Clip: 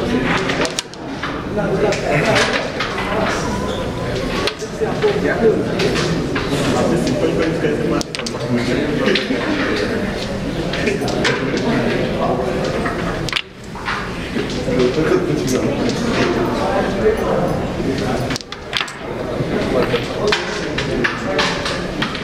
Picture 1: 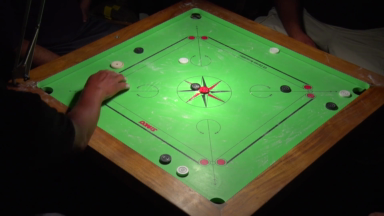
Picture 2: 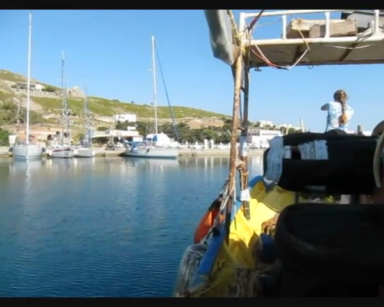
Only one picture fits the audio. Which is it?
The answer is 1